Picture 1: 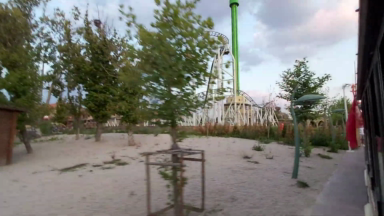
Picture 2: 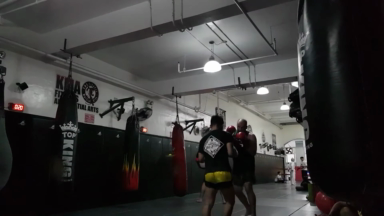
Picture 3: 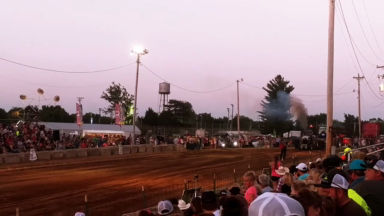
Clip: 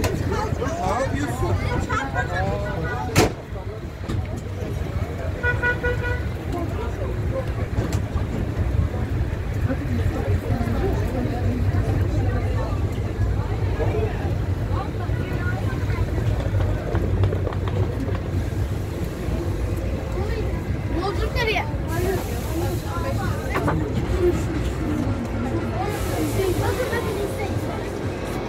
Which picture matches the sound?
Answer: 1